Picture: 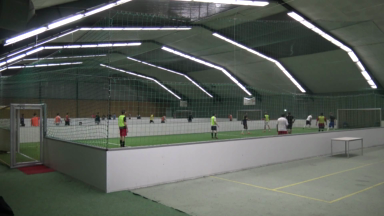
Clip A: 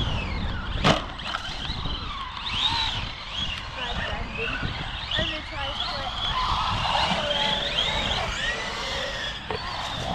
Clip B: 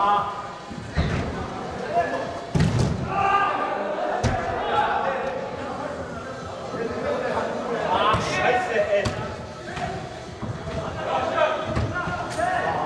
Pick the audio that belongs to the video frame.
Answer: B